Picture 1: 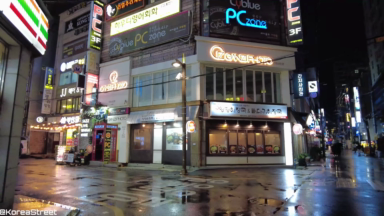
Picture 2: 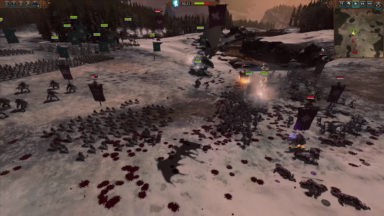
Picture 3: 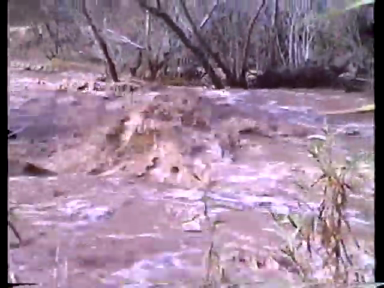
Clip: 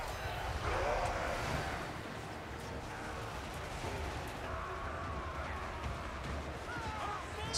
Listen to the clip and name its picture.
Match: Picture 2